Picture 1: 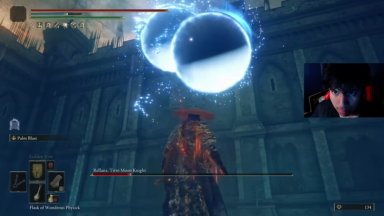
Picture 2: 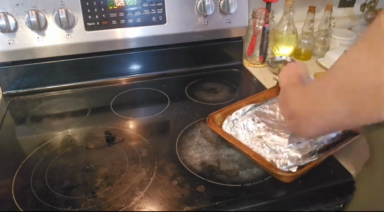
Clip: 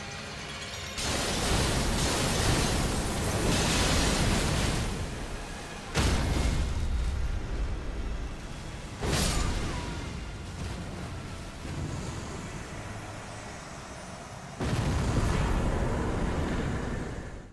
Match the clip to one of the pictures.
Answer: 1